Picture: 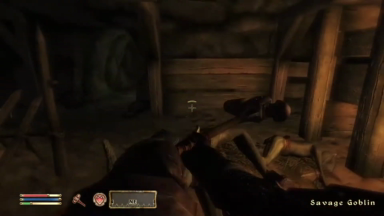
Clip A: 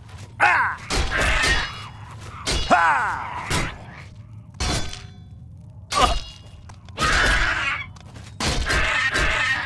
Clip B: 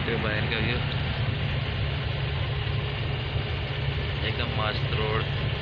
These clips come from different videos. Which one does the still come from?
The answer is A